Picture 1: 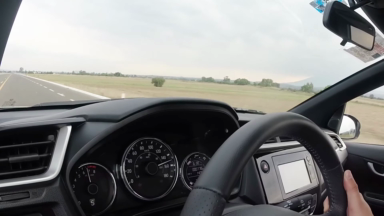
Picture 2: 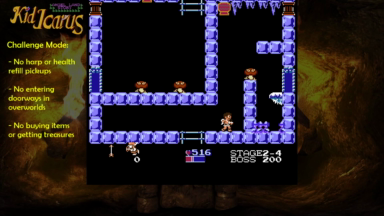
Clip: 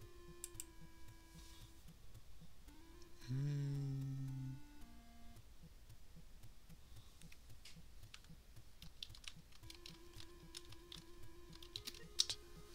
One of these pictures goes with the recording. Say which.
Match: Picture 2